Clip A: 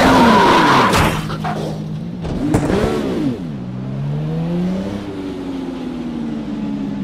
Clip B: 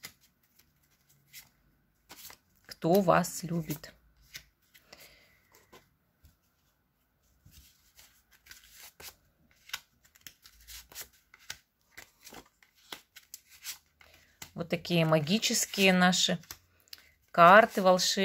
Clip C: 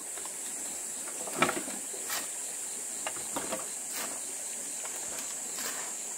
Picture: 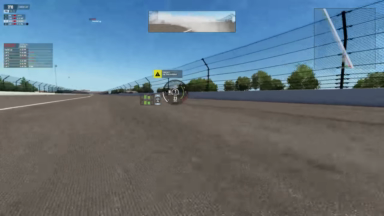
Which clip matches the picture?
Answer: A